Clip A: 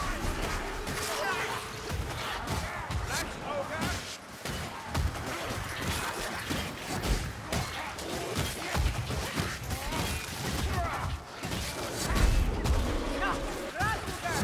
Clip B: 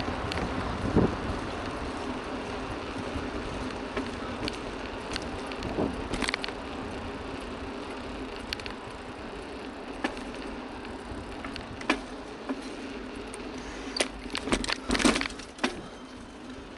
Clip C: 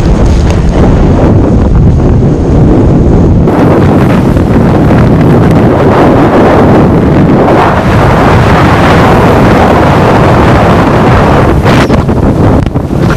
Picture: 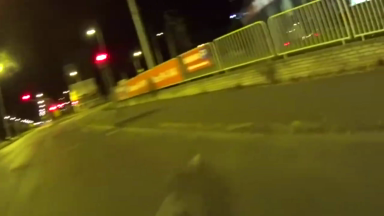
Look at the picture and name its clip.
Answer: B